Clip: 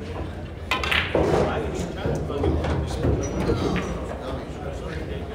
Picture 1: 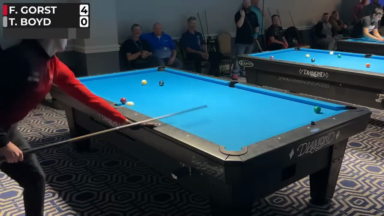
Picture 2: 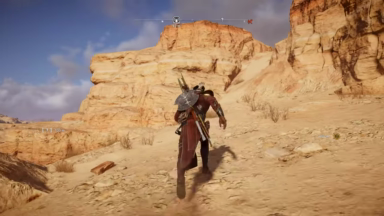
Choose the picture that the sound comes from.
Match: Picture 1